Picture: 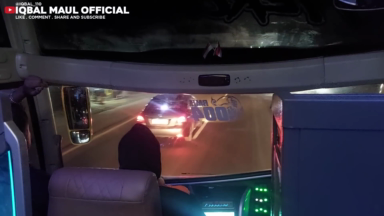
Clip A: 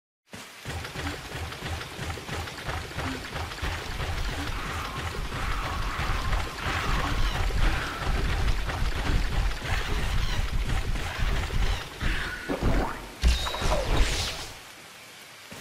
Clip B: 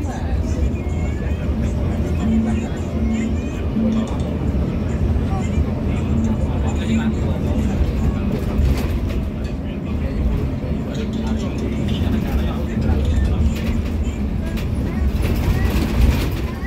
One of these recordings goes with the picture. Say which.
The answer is B